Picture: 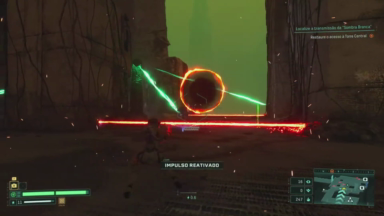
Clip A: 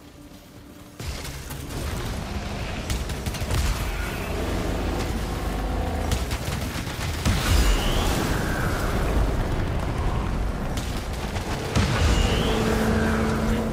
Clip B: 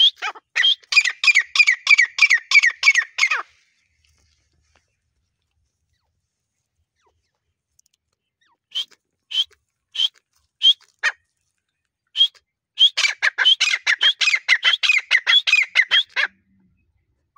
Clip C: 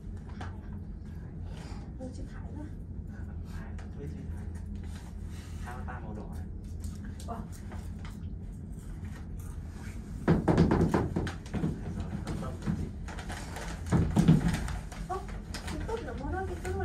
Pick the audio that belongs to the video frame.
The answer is A